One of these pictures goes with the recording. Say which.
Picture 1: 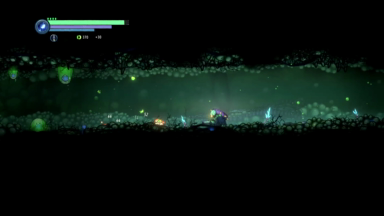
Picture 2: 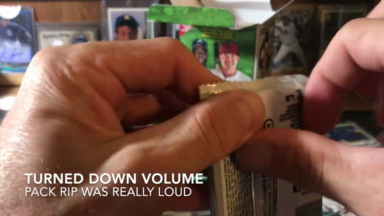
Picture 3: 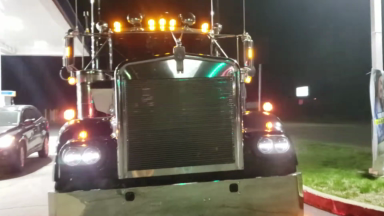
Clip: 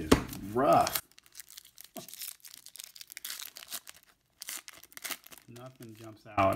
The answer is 2